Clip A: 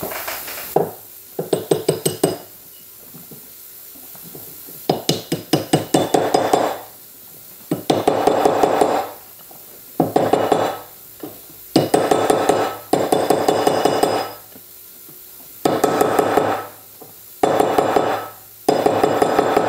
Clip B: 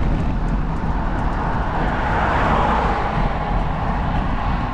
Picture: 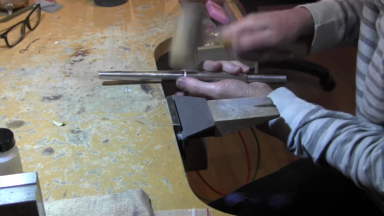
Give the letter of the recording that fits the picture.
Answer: A